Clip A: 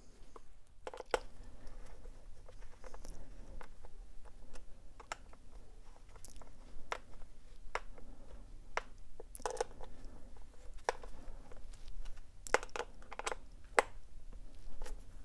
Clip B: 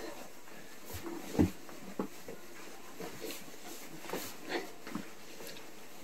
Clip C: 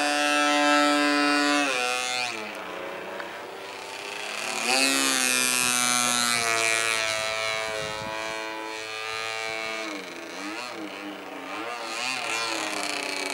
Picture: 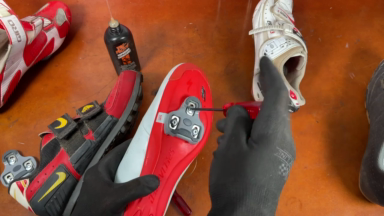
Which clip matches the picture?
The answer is A